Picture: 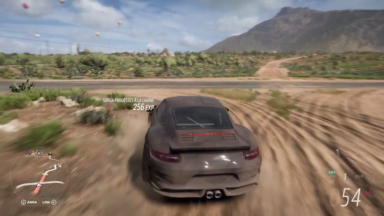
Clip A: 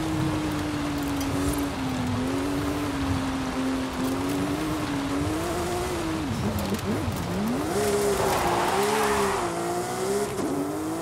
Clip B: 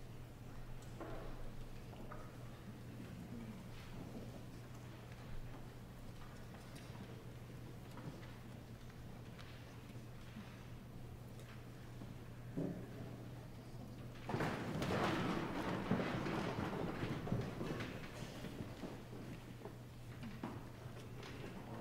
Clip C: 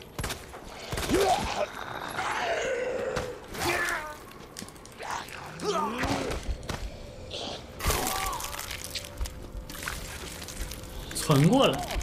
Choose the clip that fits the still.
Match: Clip A